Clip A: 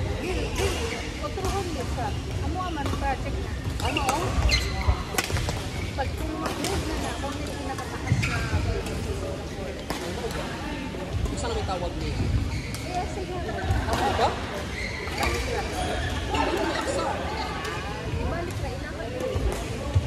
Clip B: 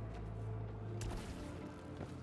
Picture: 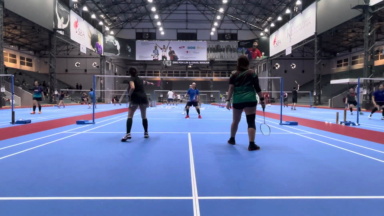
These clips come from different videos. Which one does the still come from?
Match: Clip A